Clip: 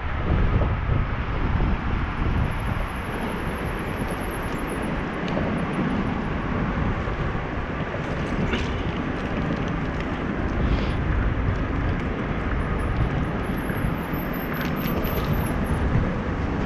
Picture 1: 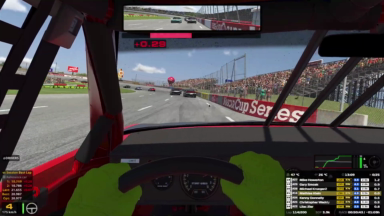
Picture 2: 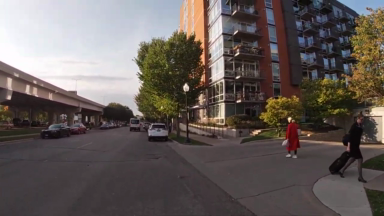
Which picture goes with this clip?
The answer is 2